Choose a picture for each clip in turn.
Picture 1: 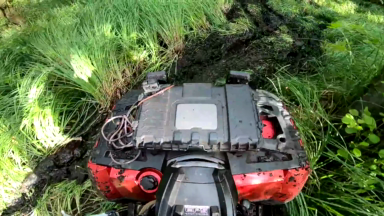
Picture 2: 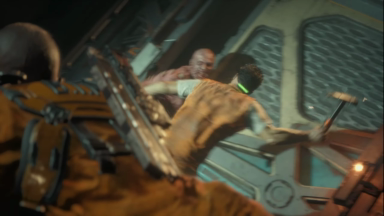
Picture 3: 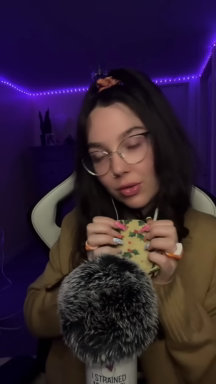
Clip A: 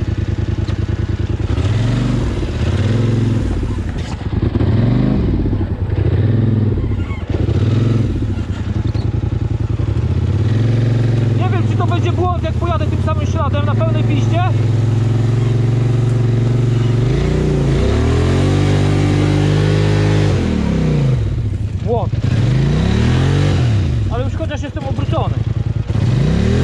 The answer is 1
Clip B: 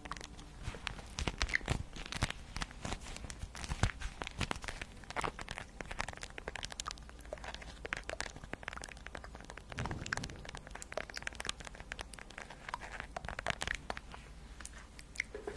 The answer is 3